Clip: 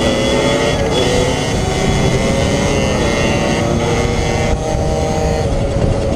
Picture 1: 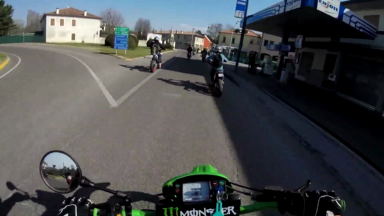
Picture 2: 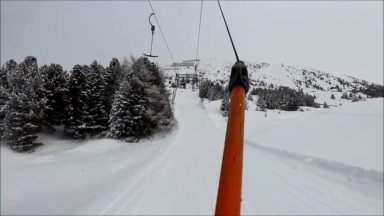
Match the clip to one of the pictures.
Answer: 1